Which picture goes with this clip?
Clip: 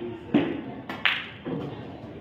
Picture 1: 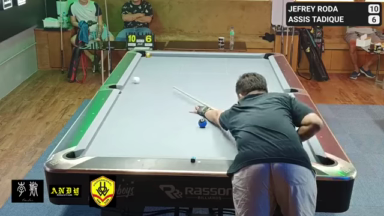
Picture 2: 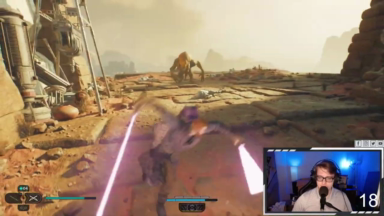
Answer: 1